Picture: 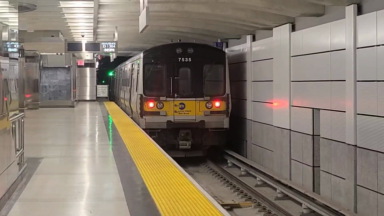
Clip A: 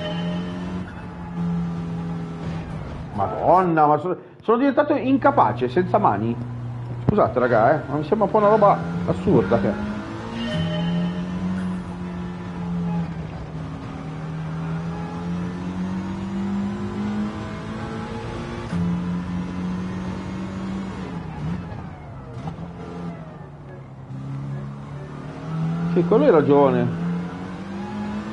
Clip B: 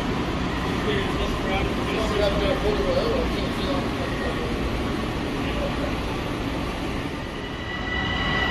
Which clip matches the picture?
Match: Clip B